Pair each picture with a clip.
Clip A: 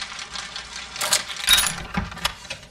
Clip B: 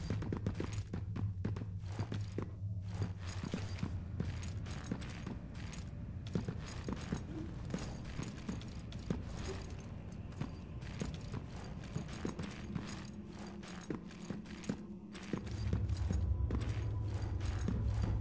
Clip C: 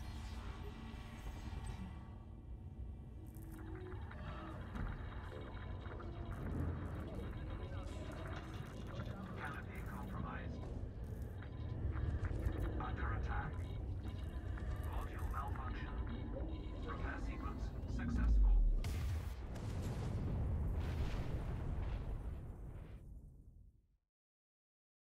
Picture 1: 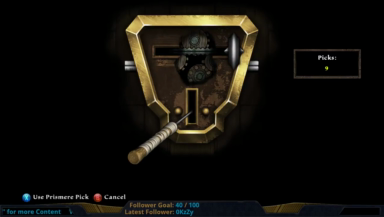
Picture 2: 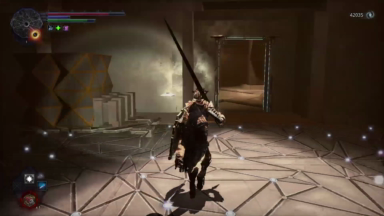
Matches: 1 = A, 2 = B